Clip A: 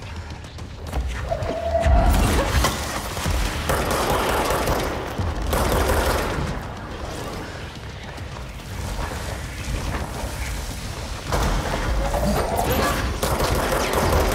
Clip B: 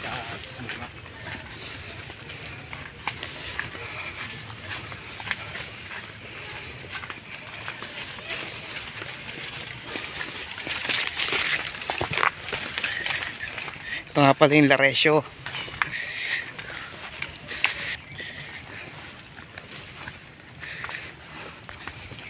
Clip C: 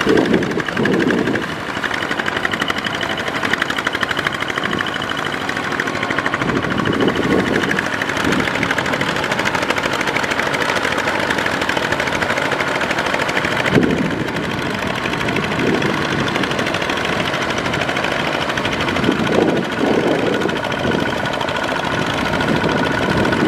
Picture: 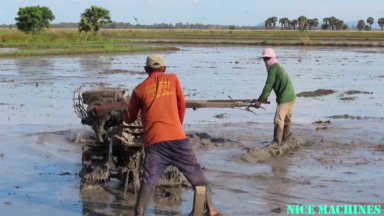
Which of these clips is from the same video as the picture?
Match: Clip C